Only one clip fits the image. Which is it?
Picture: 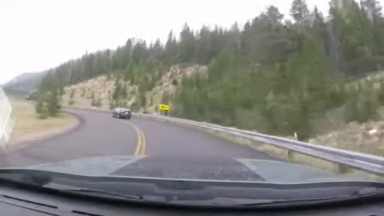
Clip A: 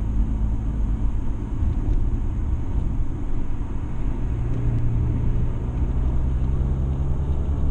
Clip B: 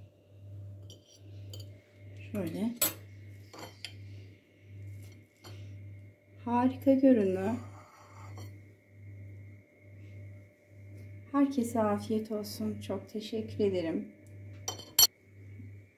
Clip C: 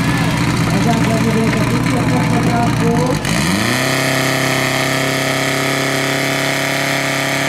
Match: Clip A